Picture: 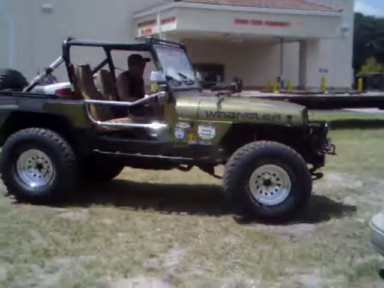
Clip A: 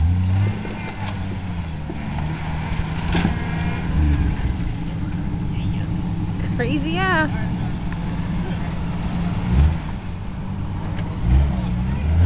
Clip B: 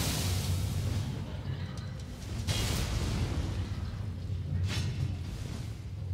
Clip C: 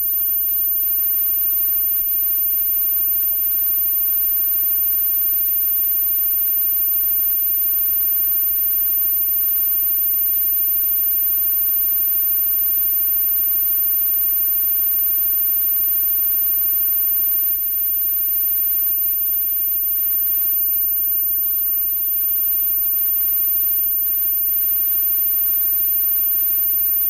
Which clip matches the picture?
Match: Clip A